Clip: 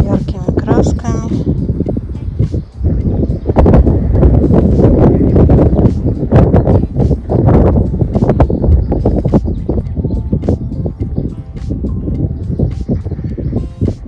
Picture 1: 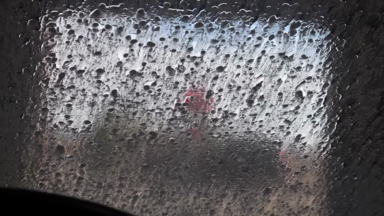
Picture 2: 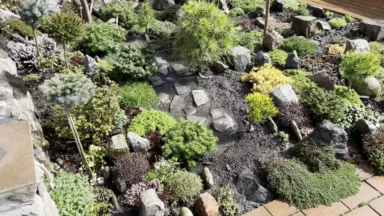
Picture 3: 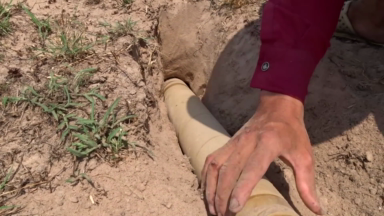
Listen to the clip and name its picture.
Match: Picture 2